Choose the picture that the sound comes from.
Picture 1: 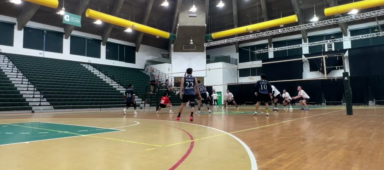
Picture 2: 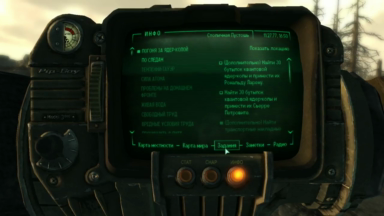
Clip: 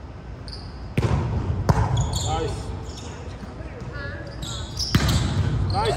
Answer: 1